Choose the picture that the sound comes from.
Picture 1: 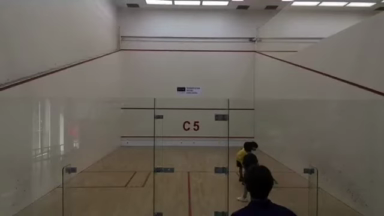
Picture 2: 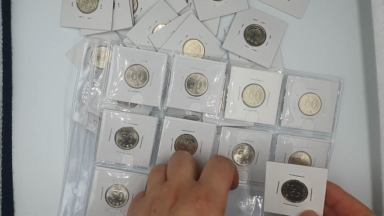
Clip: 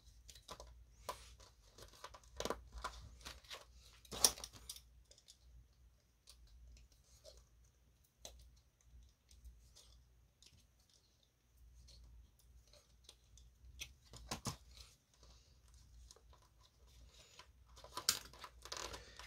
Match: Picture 2